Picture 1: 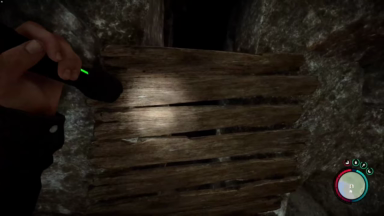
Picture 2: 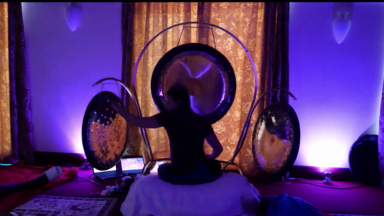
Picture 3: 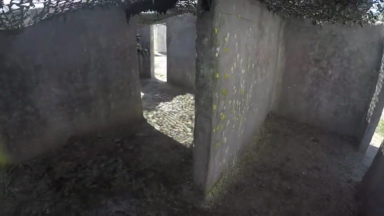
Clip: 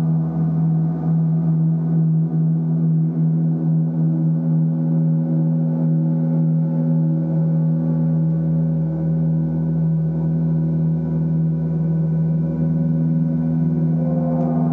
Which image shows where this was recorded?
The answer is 2